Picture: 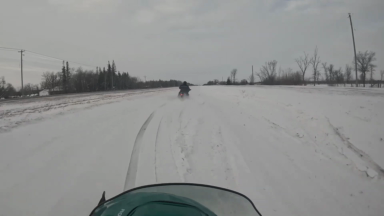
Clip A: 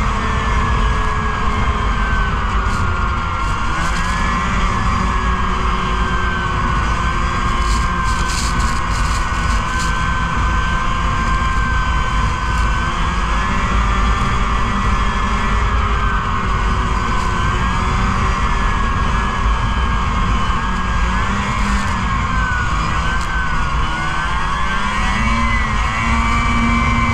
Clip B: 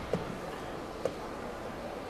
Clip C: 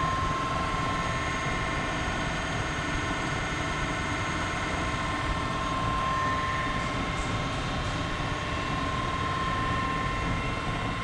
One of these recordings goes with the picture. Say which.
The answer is A